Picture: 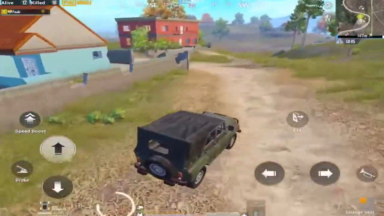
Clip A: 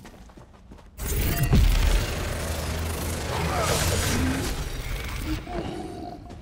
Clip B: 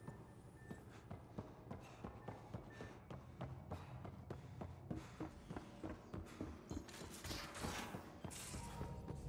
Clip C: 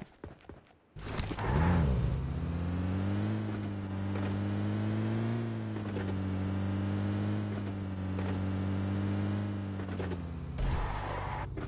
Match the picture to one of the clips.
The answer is C